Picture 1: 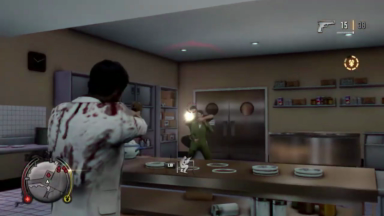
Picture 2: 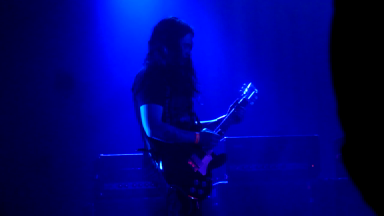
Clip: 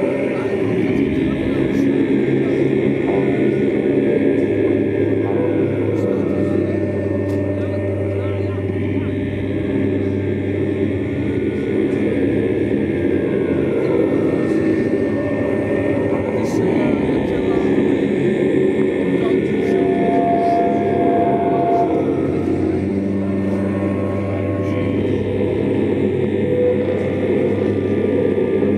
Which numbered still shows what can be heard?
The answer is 2